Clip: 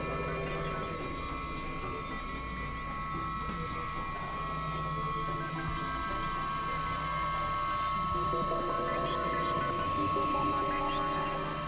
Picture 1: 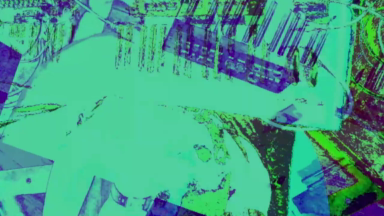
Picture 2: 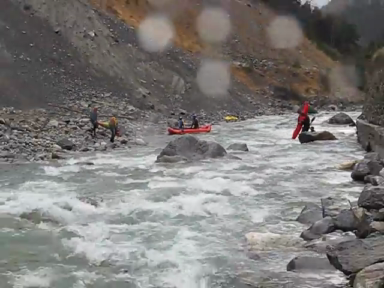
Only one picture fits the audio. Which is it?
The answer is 1